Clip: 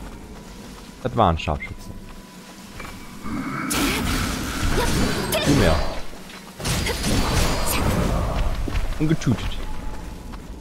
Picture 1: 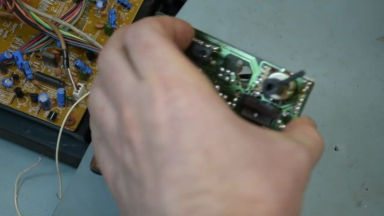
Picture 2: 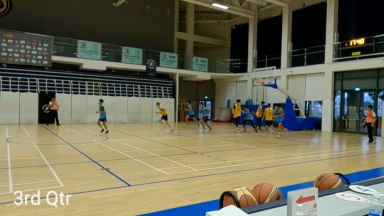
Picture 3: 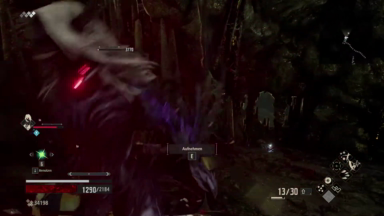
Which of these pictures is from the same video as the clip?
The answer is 3